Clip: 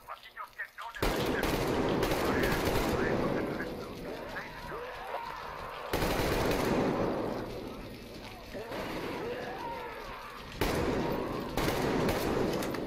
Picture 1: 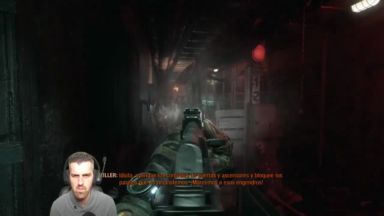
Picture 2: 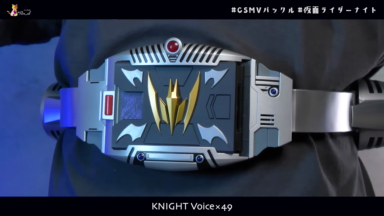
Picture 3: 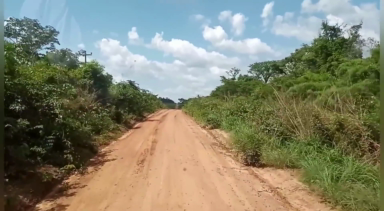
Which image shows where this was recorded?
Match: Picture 1